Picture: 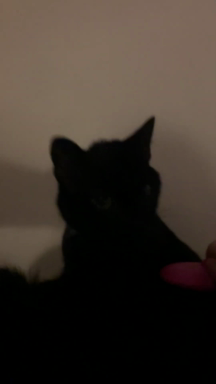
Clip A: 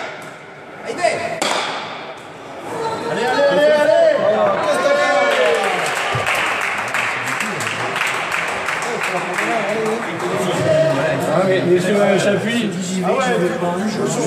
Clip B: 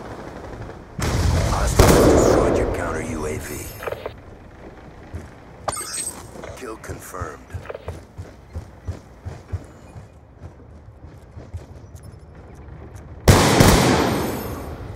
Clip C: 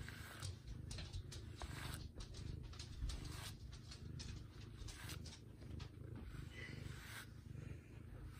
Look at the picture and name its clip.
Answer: C